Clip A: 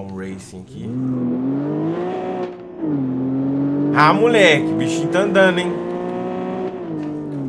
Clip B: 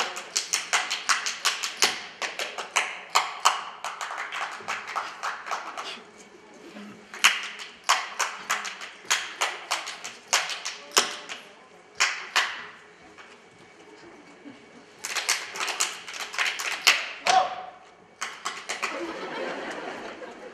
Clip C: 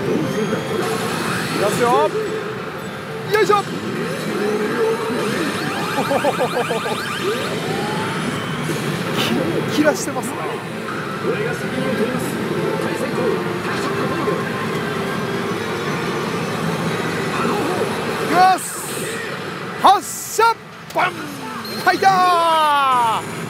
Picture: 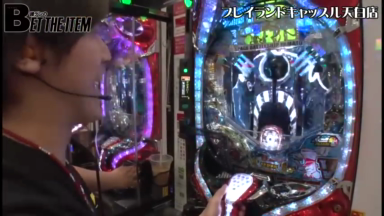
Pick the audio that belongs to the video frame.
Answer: C